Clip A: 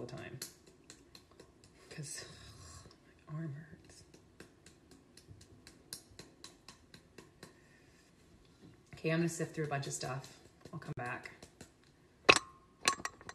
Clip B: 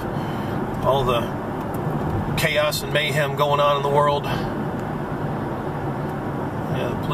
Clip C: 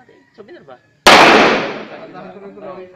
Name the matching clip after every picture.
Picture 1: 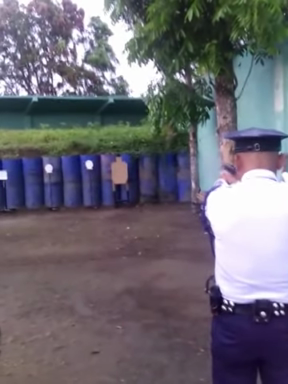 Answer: C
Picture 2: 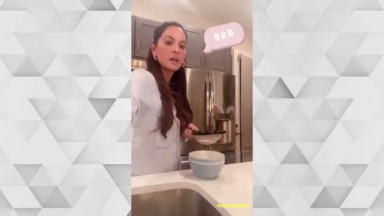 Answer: A